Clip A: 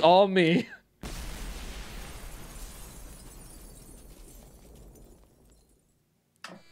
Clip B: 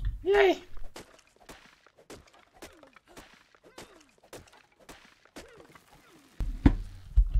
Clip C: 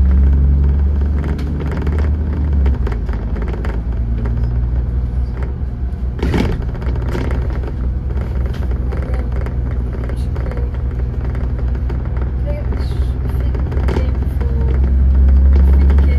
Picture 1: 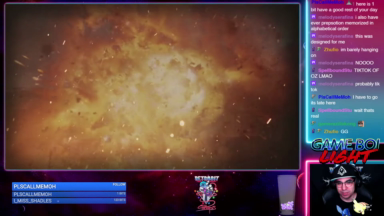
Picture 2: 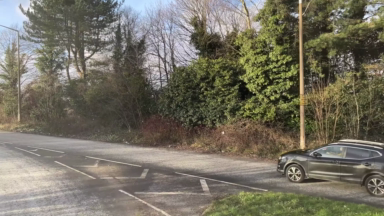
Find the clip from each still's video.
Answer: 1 A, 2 C